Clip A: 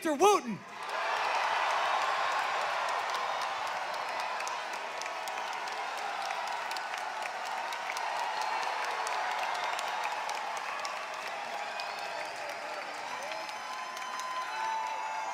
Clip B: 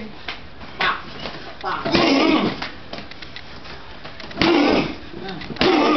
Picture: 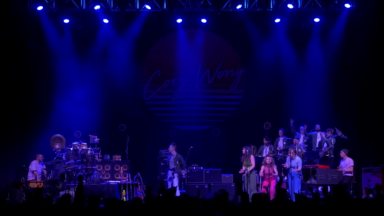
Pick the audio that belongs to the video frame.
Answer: A